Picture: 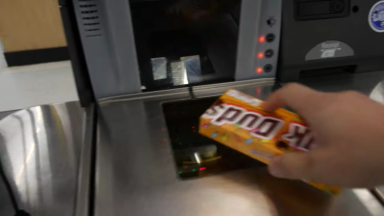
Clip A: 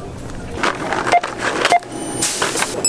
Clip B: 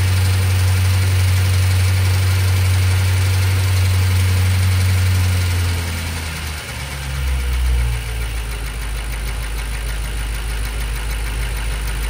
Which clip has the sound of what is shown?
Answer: A